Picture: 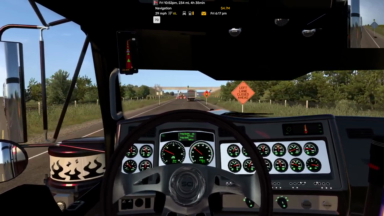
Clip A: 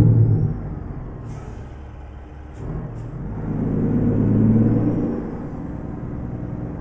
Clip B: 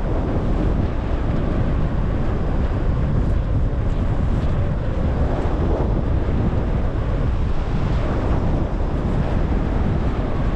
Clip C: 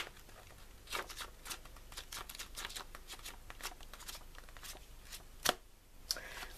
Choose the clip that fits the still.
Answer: A